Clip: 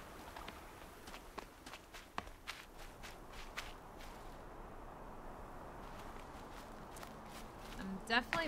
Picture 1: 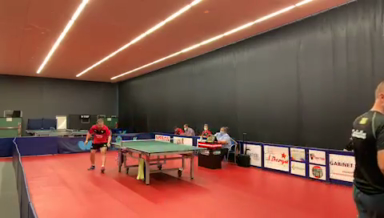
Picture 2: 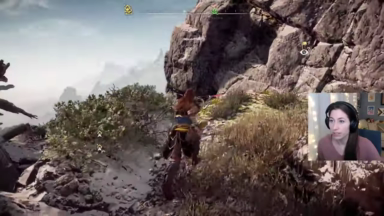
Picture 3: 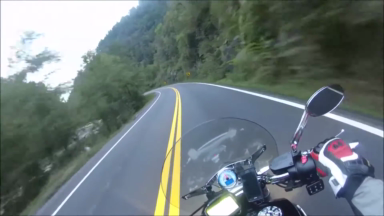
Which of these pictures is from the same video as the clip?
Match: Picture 2